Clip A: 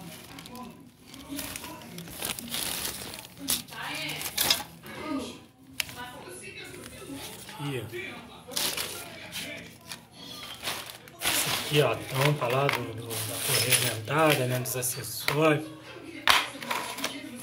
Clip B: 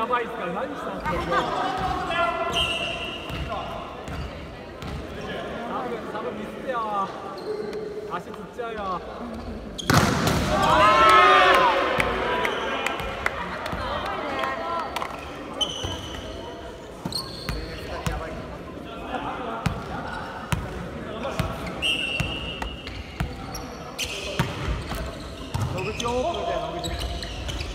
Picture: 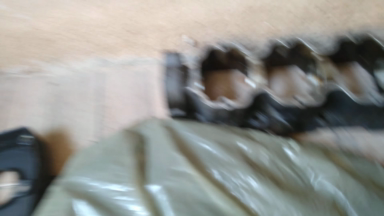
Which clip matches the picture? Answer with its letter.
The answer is A